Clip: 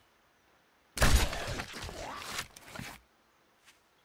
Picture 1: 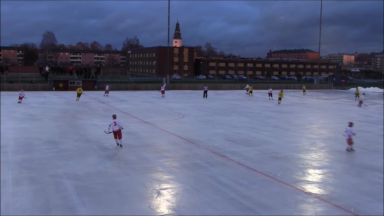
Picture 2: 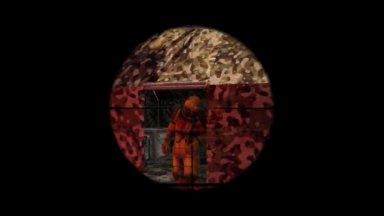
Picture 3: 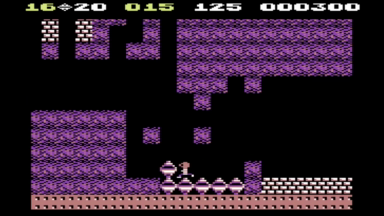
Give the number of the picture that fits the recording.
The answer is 2